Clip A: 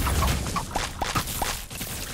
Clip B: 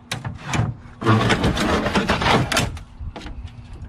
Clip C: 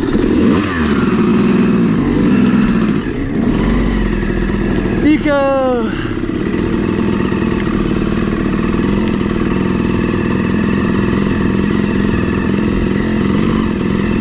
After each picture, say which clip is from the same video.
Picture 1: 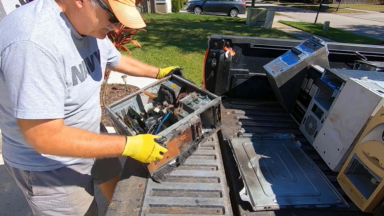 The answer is B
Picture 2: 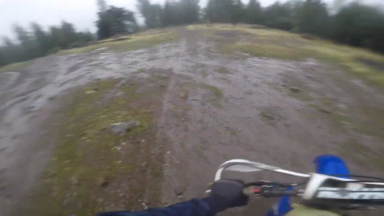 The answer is C